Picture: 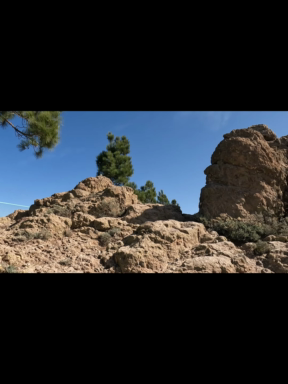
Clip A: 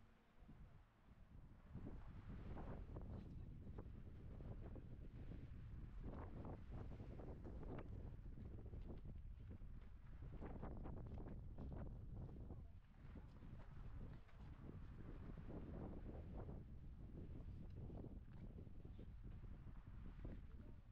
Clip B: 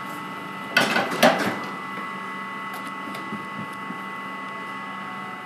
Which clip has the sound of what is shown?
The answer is A